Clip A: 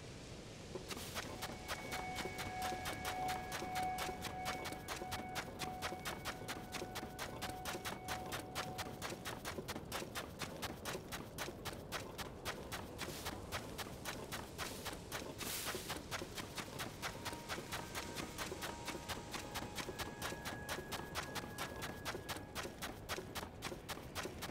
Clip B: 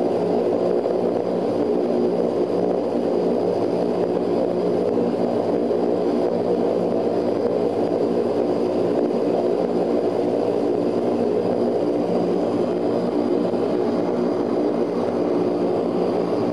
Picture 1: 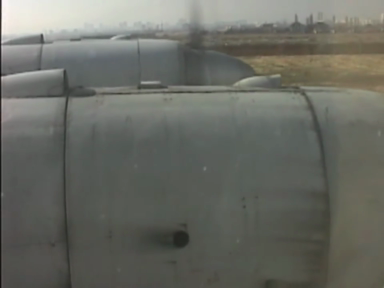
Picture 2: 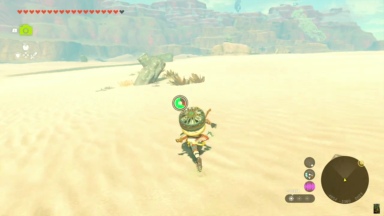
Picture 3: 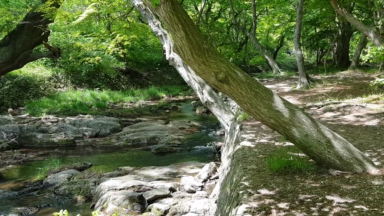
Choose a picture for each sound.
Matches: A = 2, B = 1